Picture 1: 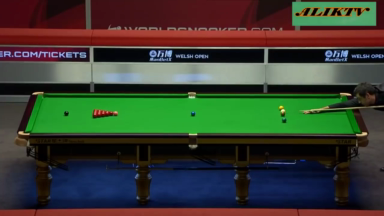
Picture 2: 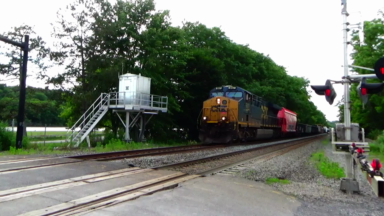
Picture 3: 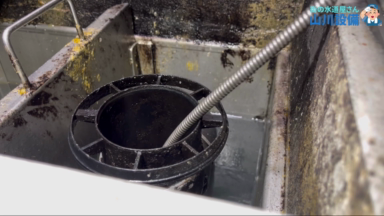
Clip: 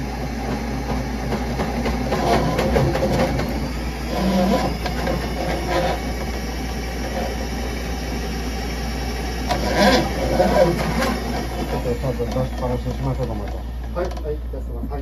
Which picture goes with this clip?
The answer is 3